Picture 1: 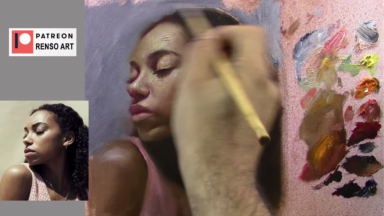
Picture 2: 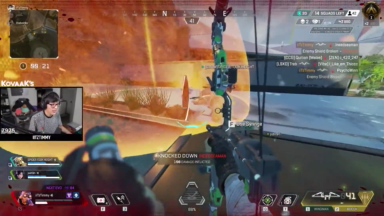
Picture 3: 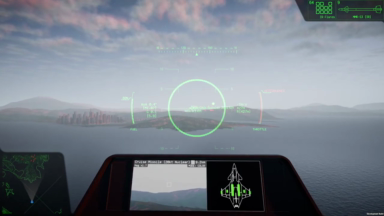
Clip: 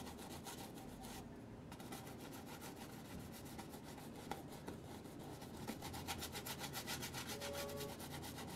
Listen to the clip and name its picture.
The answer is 1